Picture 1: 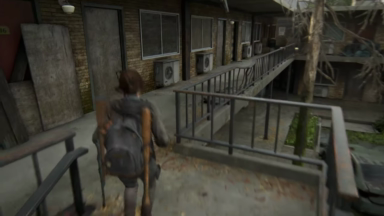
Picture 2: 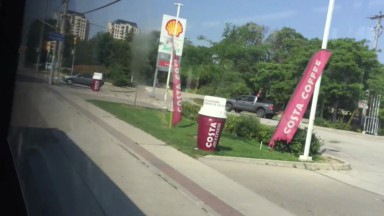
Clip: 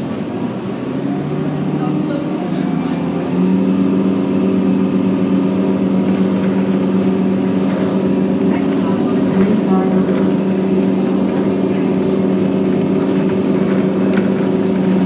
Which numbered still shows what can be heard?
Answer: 2